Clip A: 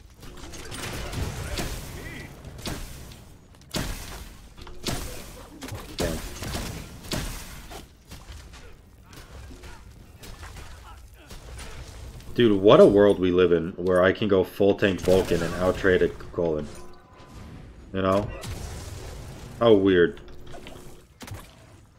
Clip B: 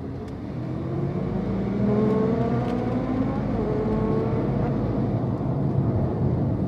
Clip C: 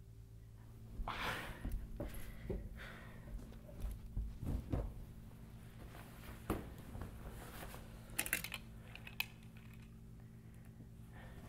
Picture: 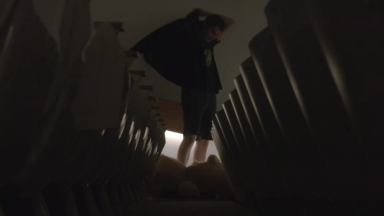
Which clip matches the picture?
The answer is C